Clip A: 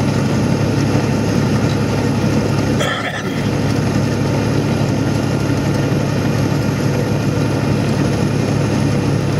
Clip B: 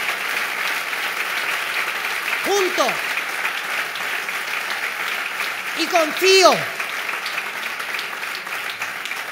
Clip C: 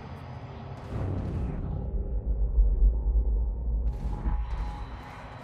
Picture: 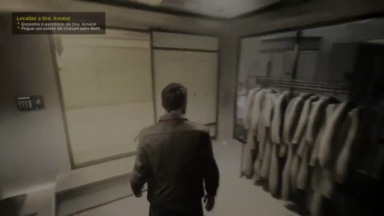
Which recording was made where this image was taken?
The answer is C